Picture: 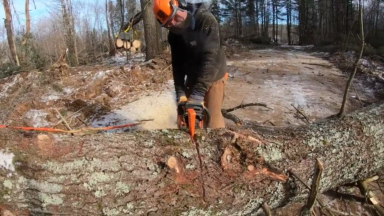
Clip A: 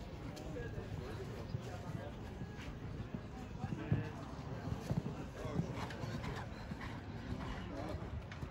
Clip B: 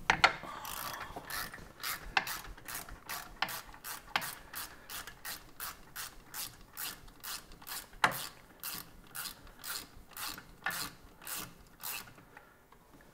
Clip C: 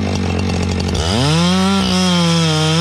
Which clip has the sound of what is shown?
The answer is C